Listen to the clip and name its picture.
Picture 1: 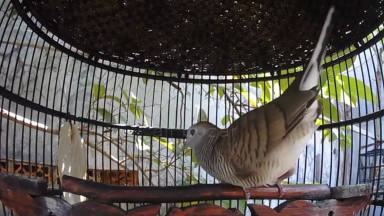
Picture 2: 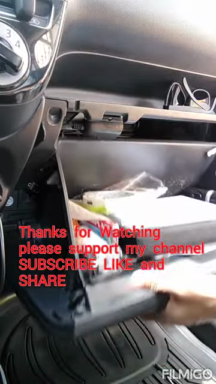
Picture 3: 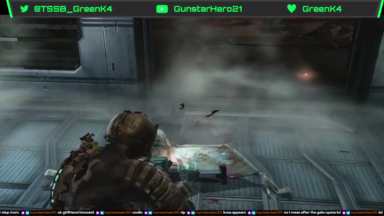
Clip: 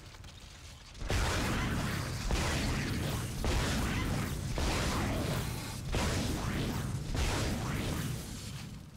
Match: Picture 3